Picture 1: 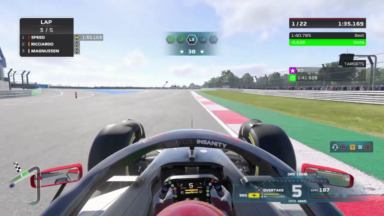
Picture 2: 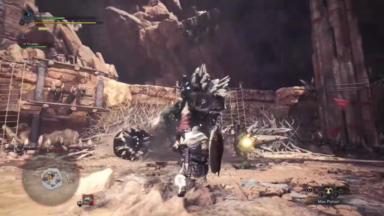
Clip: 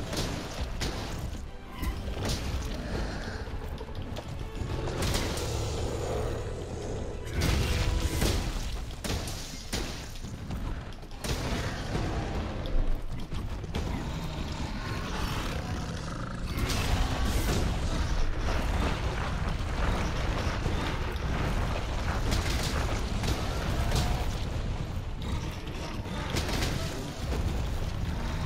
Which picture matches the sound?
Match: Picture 2